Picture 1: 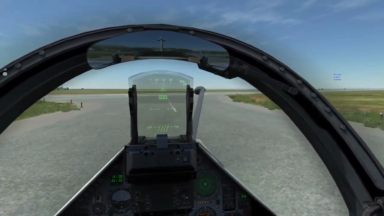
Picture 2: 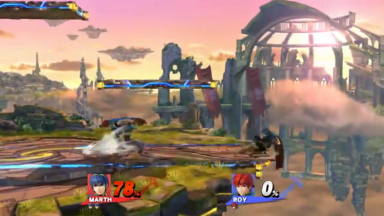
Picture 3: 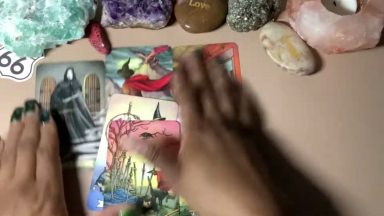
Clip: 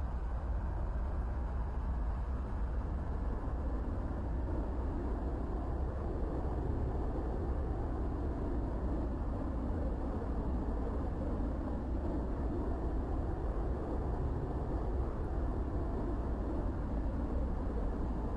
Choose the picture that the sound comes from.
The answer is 1